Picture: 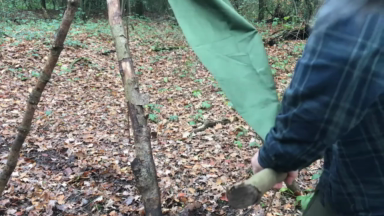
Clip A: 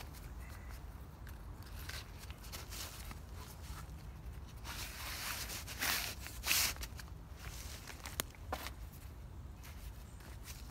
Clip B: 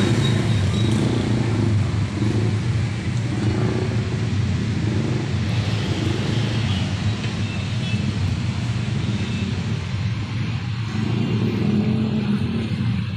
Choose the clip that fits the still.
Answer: A